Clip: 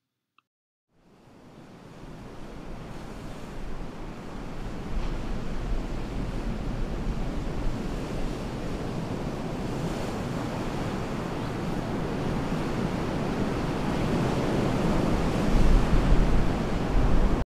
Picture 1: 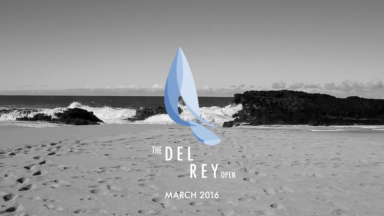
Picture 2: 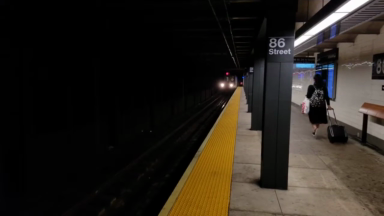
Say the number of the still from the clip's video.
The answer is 1